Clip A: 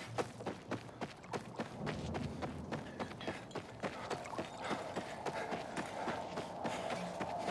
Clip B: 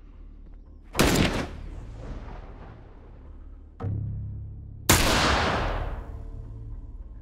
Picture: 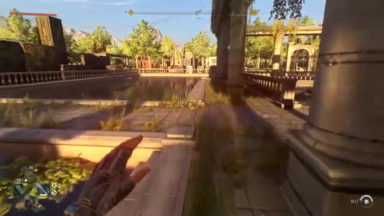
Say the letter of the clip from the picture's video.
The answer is A